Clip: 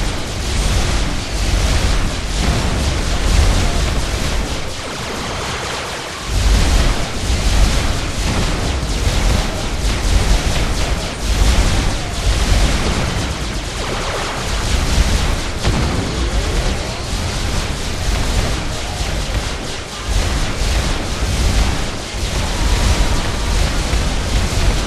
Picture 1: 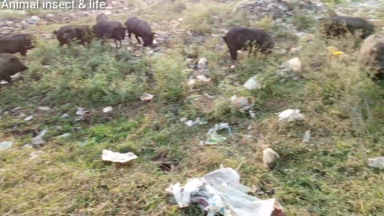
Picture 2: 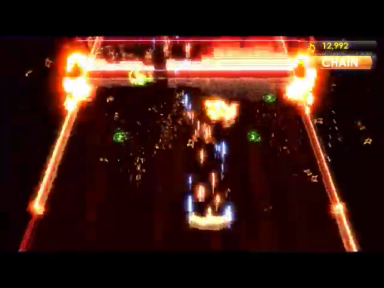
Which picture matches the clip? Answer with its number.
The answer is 2